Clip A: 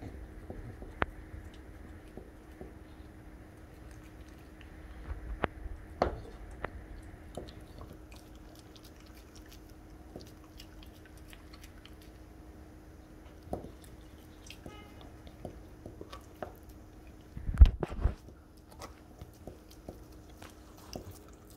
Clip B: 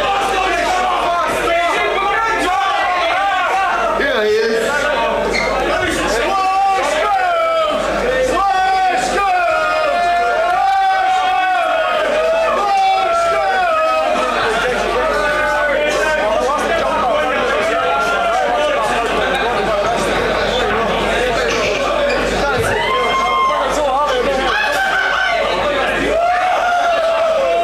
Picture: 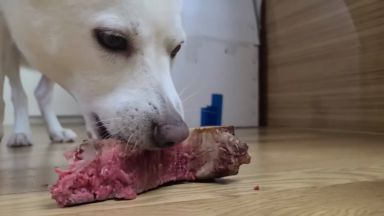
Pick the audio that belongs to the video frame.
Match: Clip A